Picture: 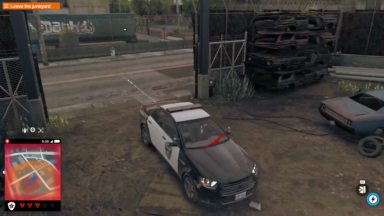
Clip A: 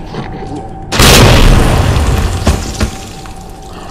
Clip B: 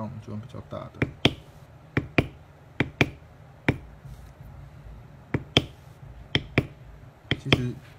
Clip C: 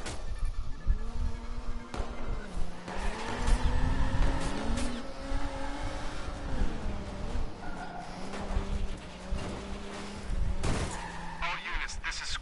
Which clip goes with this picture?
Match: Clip C